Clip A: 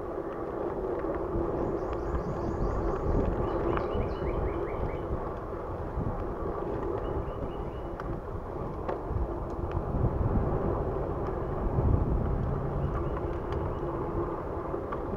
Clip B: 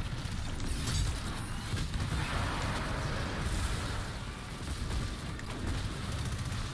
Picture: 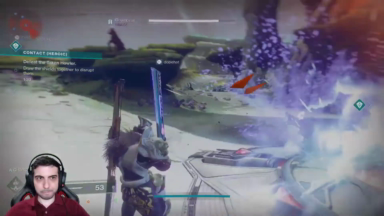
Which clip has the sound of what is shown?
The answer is B